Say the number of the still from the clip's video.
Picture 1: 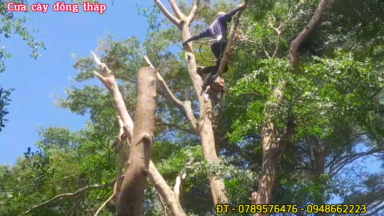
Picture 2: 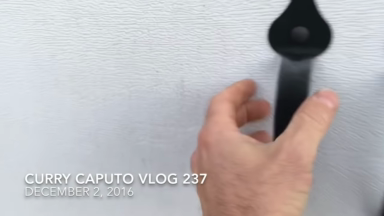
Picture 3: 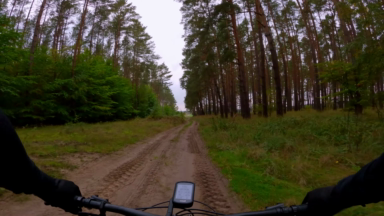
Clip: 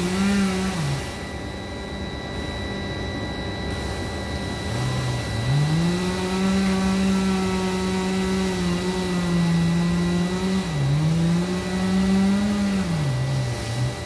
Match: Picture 1